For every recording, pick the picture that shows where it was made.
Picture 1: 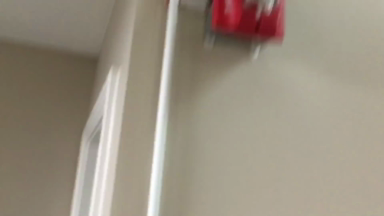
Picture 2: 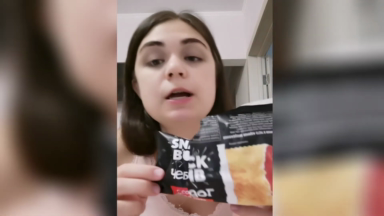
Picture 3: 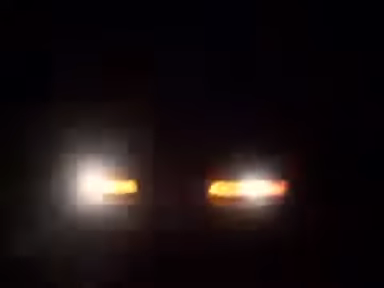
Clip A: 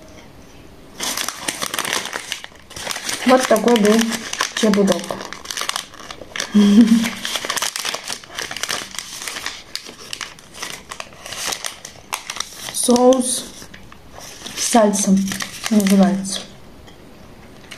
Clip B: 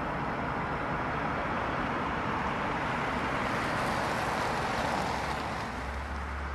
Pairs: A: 2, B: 3